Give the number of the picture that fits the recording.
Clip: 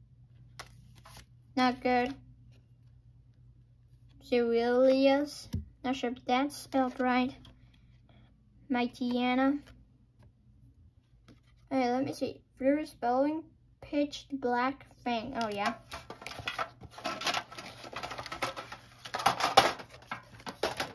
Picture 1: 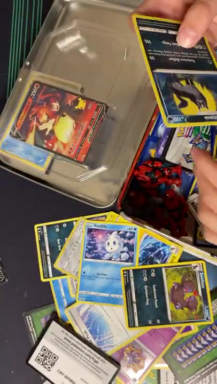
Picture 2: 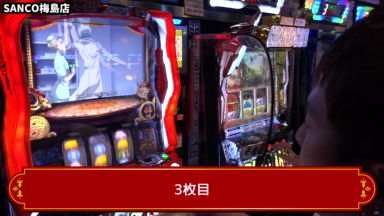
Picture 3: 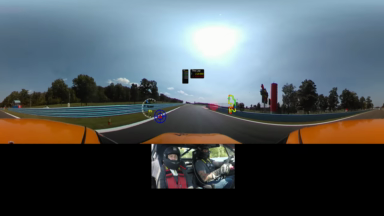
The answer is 1